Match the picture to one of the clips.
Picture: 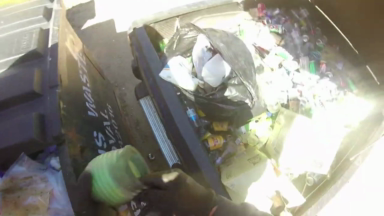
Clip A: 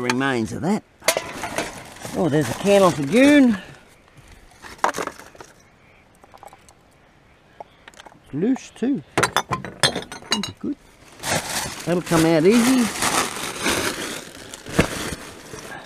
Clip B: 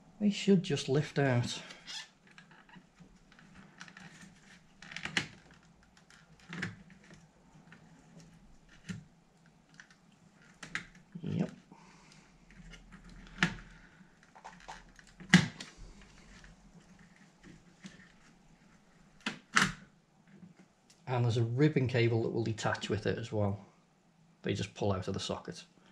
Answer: A